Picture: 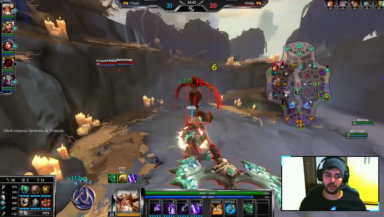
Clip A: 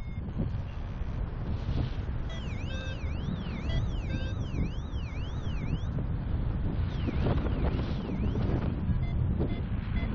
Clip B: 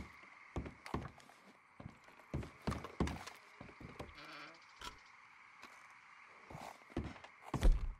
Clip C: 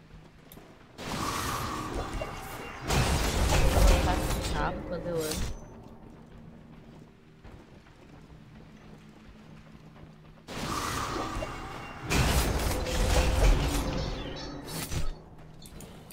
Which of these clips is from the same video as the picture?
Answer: C